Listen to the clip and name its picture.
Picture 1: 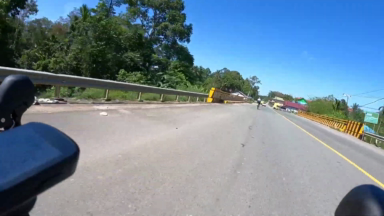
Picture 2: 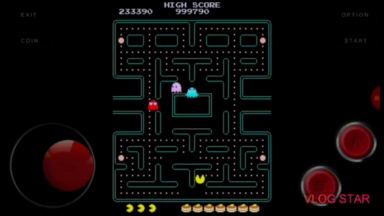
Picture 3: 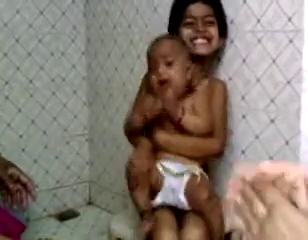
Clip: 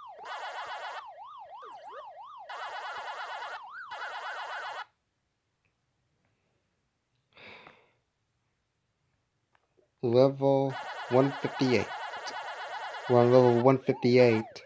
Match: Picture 2